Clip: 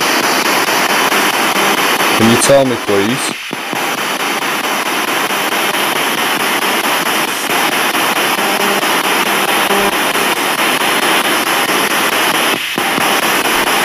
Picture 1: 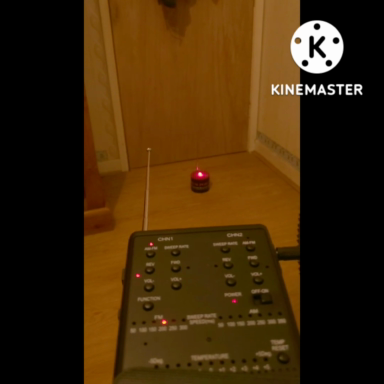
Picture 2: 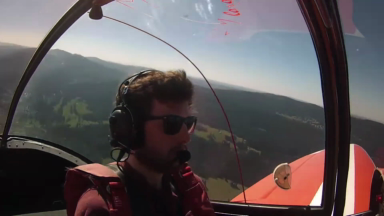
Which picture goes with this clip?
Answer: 1